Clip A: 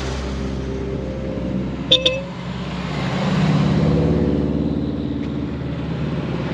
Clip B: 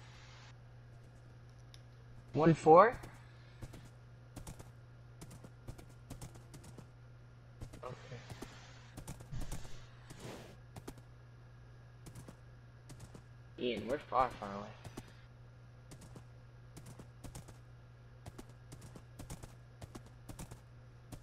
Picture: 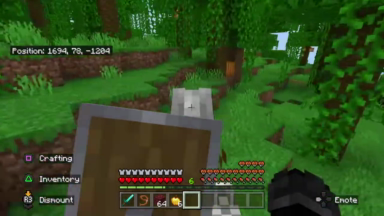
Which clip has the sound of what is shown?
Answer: B